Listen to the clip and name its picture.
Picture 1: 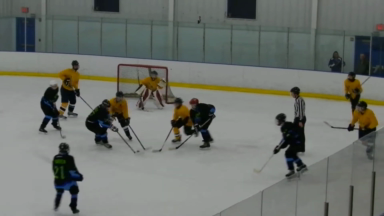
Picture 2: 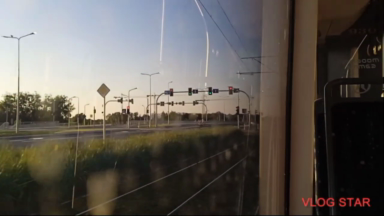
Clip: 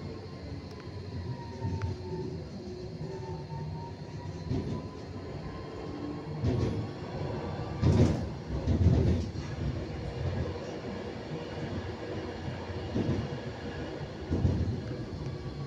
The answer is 2